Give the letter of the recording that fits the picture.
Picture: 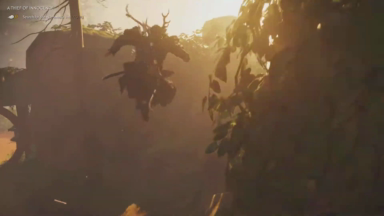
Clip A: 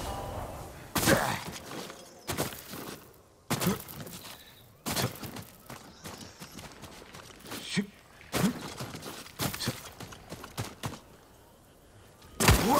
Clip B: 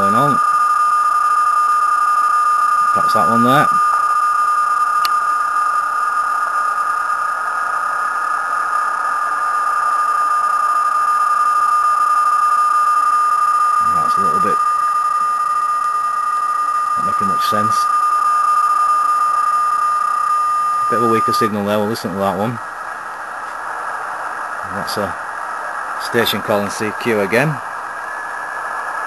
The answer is A